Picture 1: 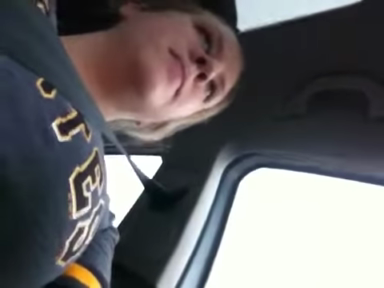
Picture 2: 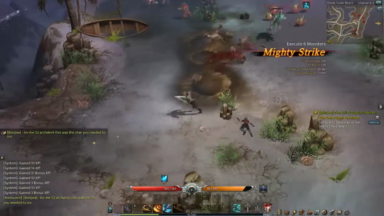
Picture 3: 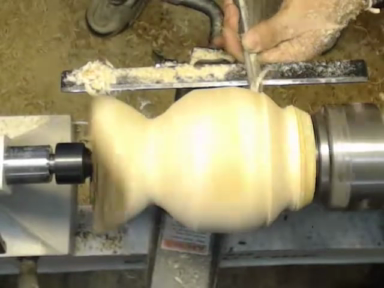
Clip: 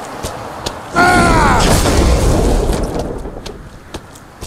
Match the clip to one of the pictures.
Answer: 2